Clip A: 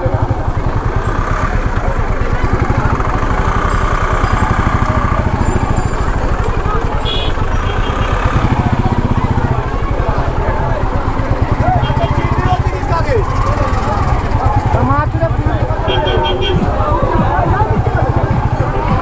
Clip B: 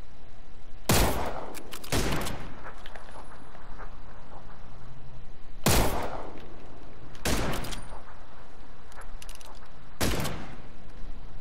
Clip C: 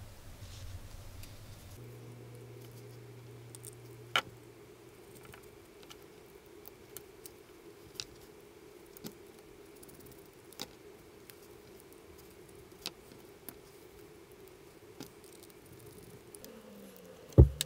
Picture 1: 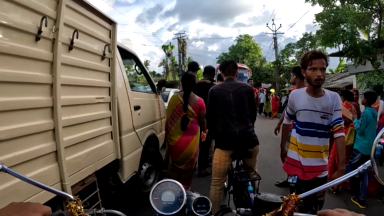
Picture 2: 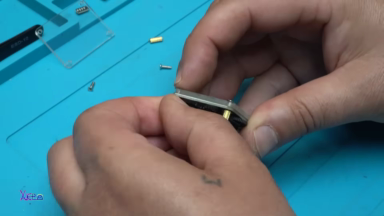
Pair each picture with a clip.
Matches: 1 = A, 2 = C